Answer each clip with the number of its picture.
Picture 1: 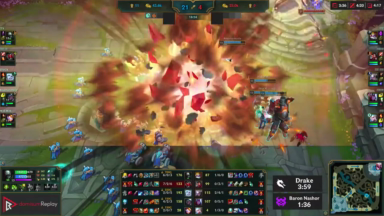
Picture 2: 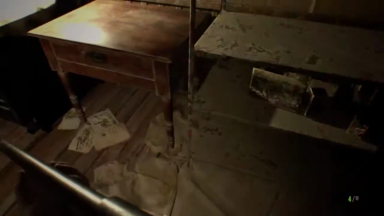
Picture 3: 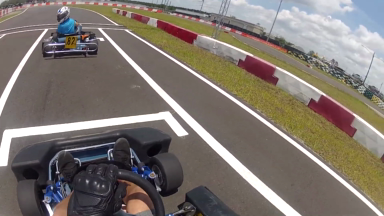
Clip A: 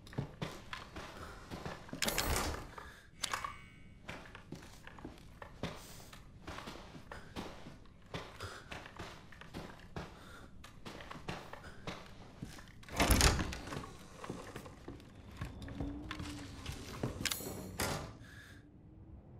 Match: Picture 2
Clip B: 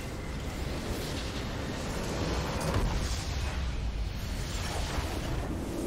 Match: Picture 1